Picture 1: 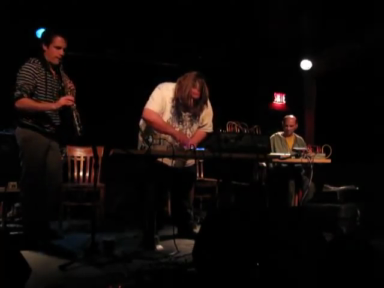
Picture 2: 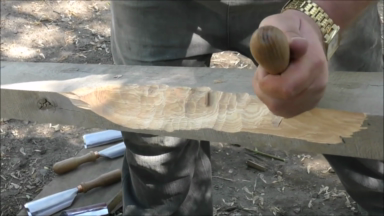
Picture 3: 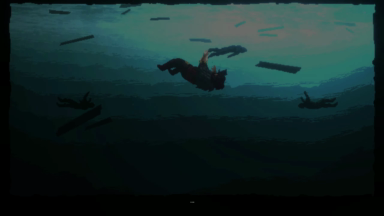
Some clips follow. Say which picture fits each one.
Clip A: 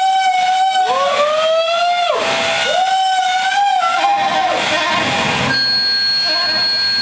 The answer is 1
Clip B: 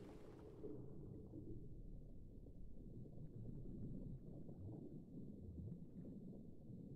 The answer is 3